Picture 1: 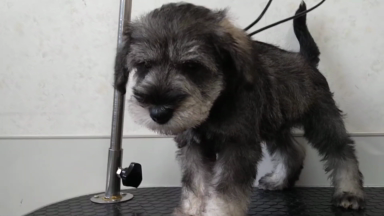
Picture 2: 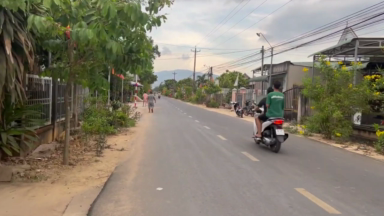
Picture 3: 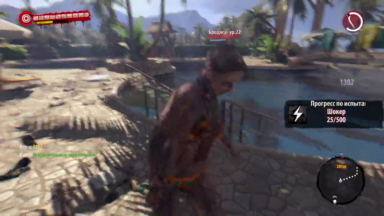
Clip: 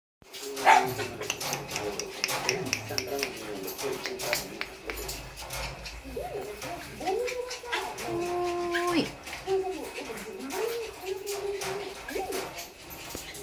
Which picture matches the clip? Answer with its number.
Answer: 1